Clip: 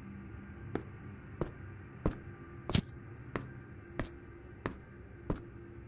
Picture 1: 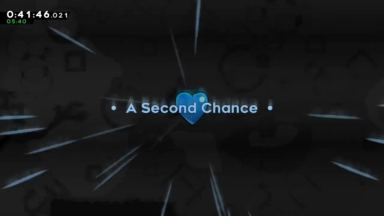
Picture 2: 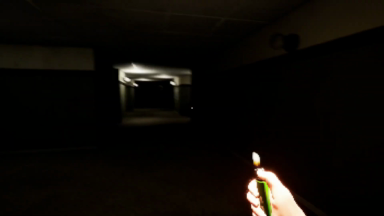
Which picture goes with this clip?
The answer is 2